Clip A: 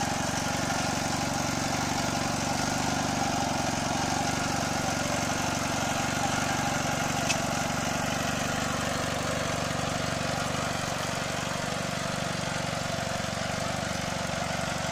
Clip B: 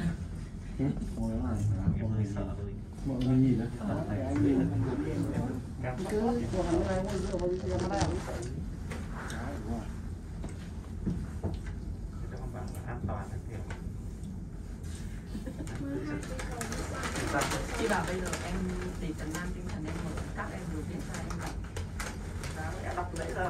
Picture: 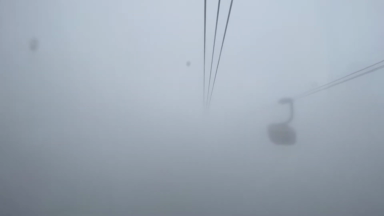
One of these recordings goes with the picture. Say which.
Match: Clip B